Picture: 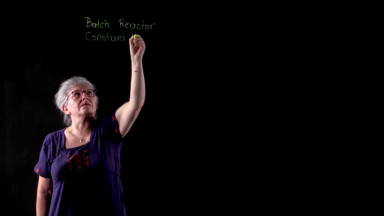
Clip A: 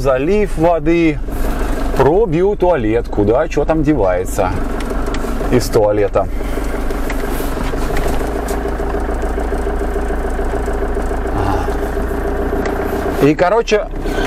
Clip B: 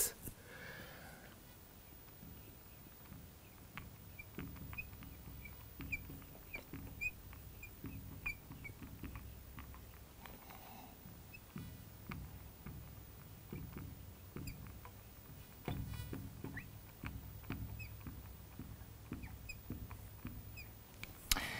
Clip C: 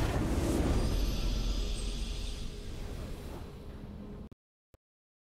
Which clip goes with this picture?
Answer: B